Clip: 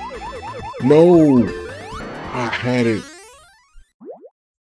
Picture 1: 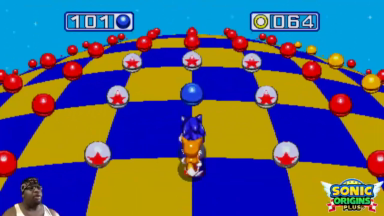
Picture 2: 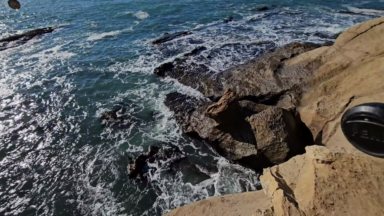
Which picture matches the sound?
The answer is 1